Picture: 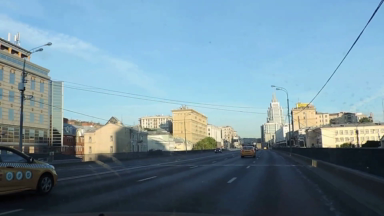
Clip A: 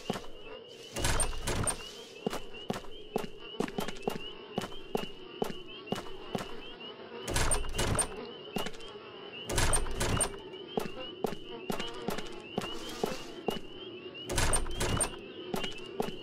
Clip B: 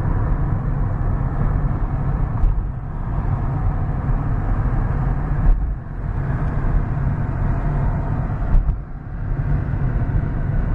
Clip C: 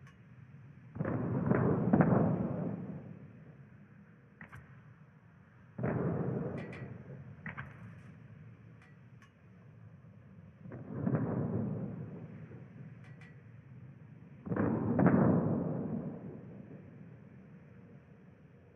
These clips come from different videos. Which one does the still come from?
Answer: B